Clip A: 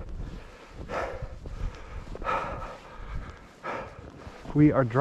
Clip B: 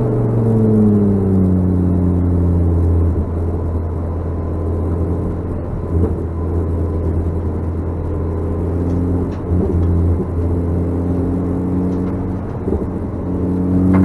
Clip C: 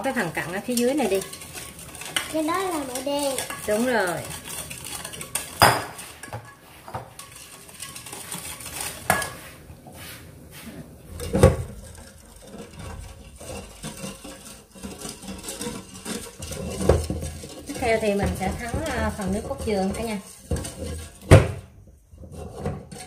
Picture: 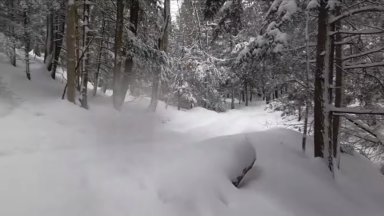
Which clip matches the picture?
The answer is A